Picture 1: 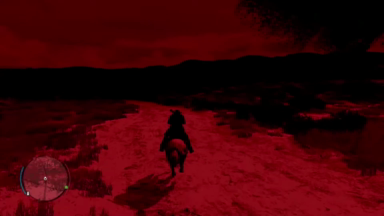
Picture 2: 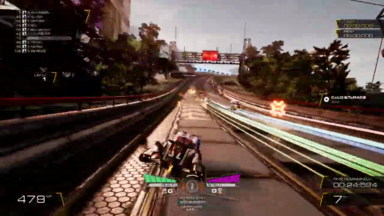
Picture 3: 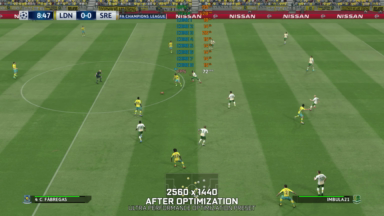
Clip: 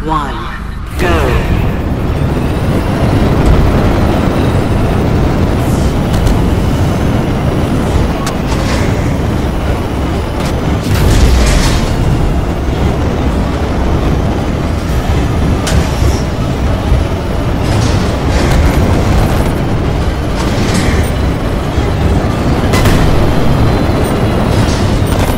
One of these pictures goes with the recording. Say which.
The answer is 2